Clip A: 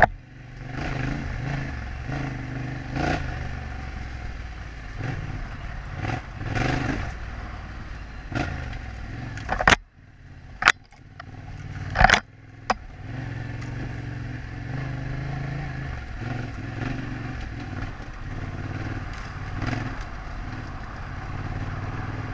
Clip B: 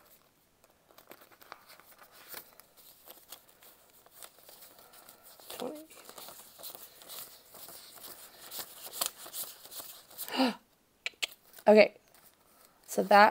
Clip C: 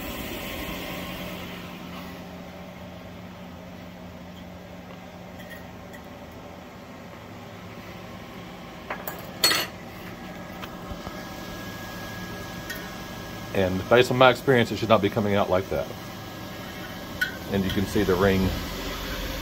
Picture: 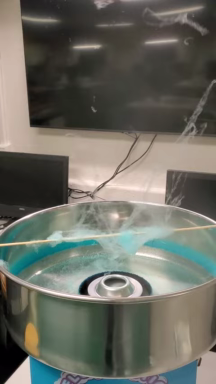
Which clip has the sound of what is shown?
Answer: C